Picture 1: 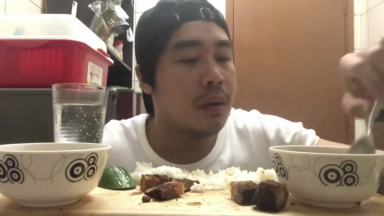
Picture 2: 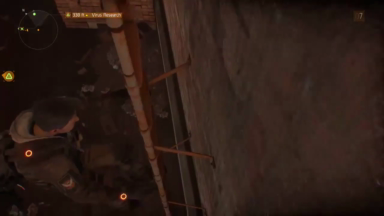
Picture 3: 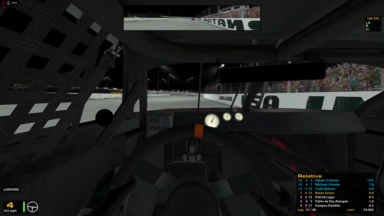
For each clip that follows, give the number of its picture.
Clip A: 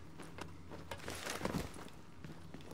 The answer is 2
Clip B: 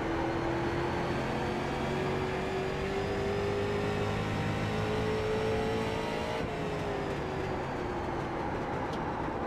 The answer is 3